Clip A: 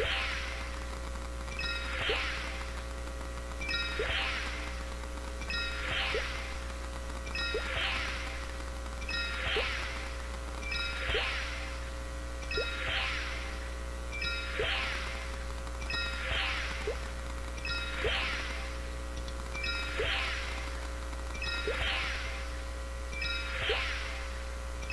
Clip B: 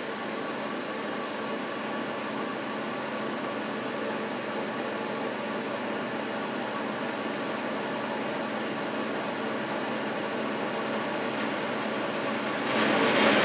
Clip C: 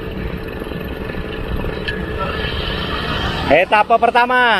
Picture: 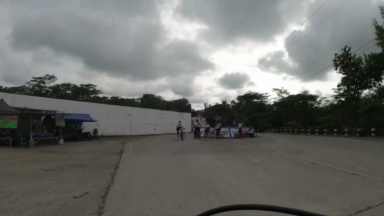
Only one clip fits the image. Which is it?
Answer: C